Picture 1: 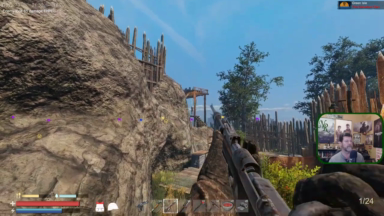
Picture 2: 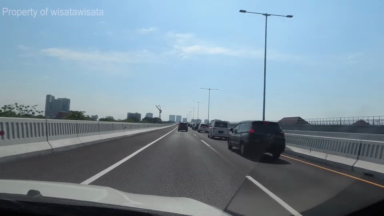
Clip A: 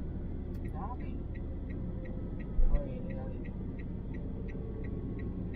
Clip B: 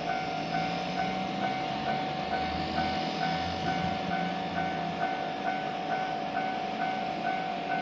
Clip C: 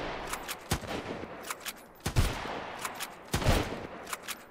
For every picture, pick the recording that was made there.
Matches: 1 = C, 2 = A